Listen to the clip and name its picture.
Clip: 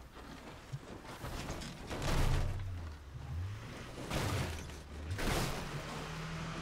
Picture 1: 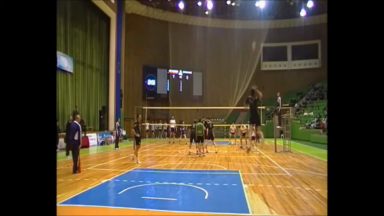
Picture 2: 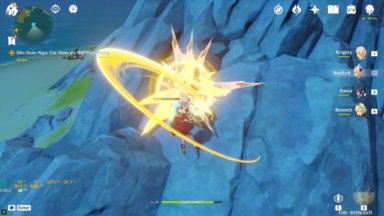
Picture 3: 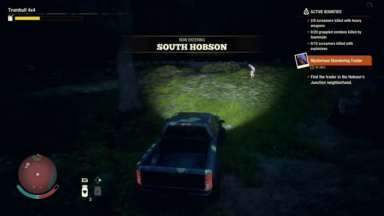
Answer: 3